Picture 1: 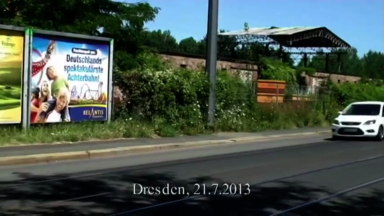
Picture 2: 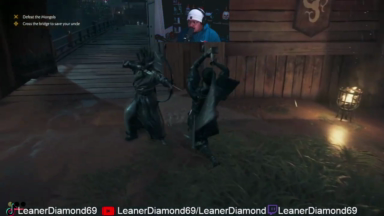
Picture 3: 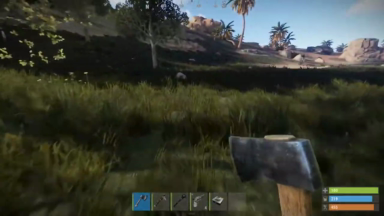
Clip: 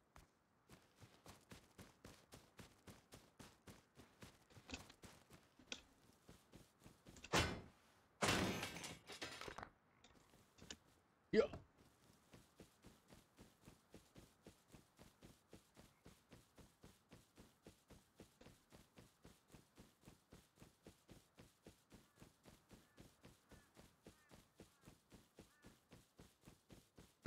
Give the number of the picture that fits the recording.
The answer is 3